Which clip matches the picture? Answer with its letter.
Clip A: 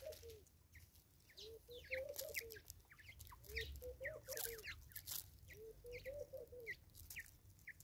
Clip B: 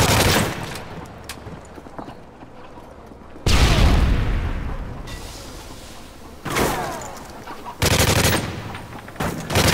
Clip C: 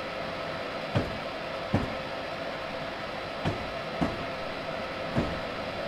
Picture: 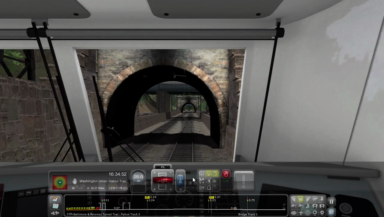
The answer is C